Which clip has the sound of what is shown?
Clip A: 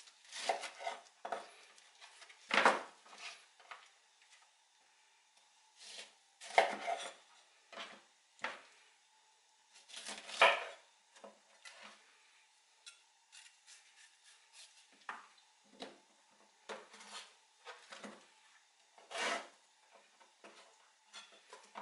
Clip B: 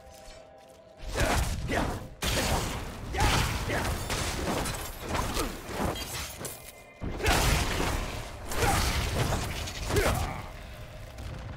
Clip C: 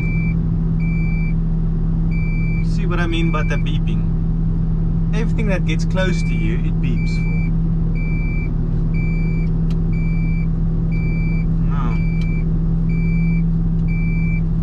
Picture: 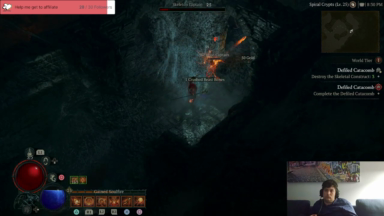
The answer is B